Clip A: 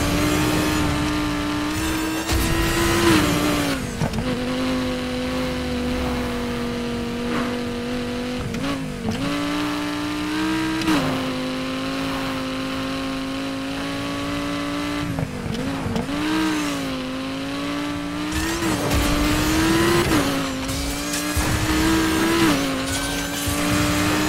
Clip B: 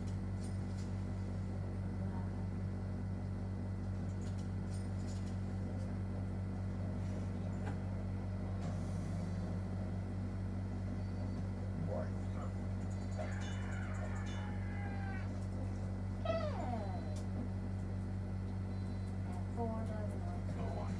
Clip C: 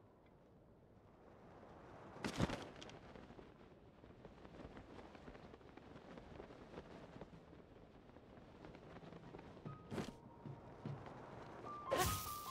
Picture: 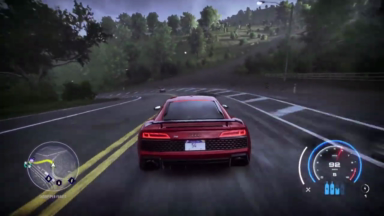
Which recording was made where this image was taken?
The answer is A